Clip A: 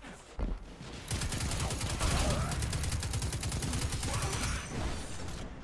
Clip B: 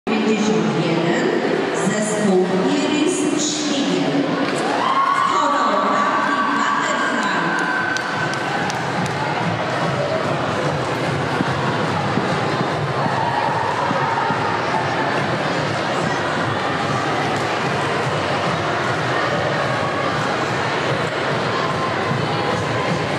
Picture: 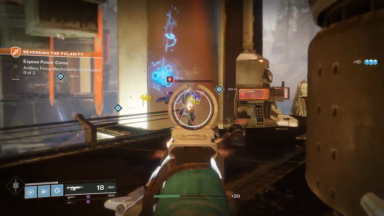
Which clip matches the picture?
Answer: A